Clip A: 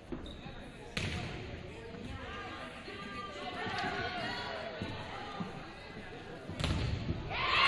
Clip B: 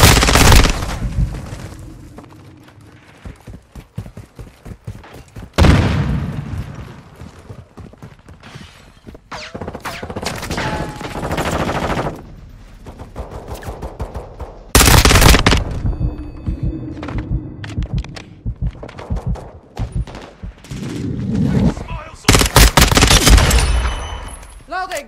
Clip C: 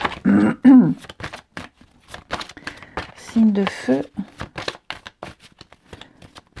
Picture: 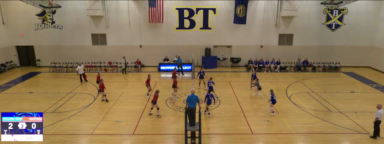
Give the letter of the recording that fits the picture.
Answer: A